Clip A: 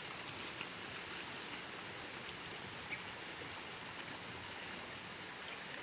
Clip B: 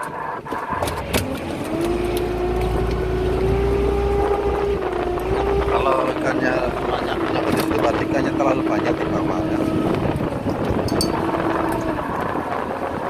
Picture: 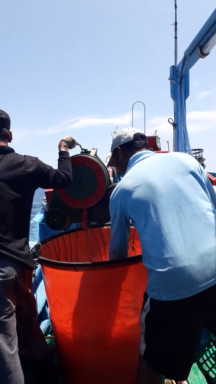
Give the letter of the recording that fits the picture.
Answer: B